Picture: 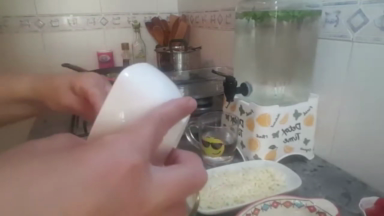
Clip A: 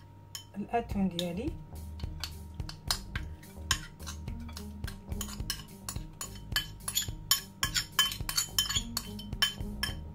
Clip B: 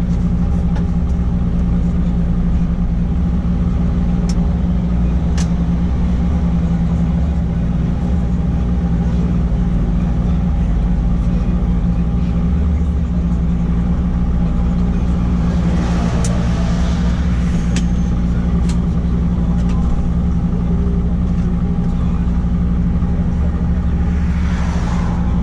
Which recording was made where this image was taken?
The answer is A